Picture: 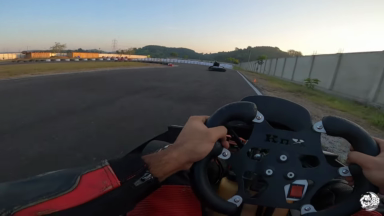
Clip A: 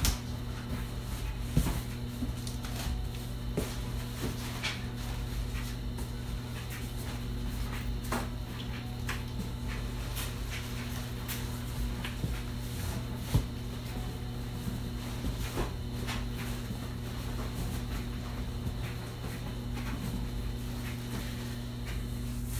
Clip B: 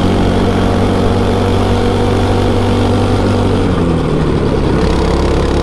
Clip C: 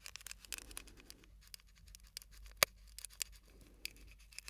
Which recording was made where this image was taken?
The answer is B